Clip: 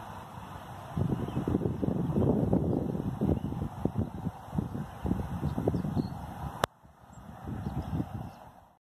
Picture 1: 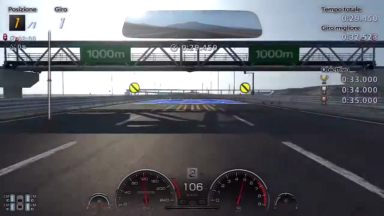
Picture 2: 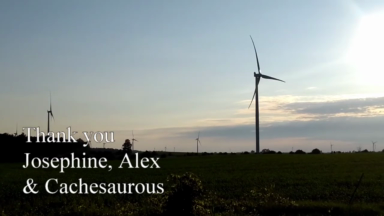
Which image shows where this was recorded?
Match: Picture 2